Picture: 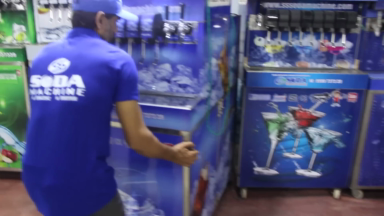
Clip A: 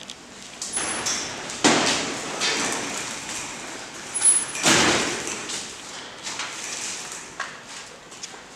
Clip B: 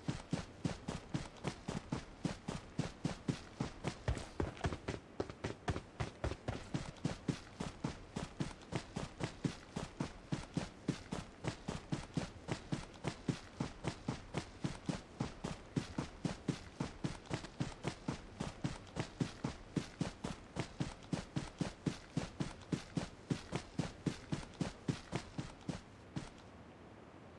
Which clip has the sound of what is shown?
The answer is A